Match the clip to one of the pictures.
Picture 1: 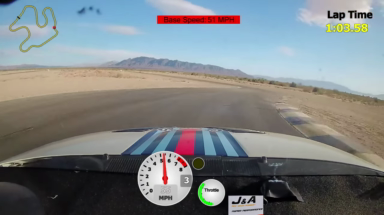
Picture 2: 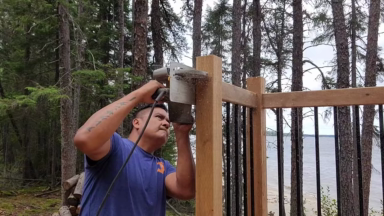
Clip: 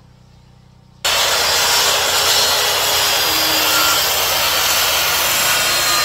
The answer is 2